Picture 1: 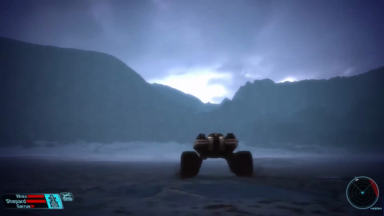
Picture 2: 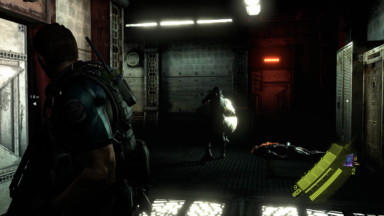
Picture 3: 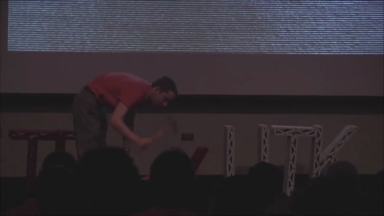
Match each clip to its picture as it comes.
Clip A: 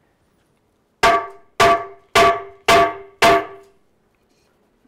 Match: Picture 3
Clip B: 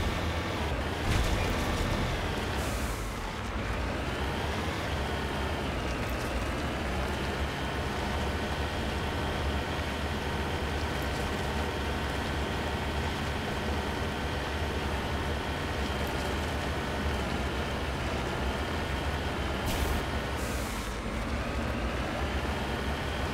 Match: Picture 1